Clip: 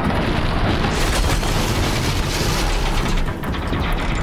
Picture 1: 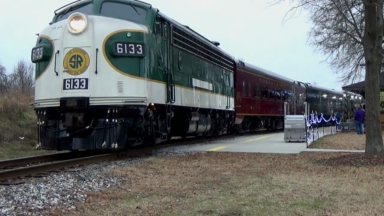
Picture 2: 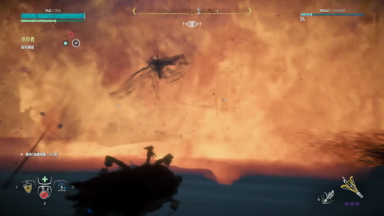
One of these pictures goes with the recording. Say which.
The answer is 2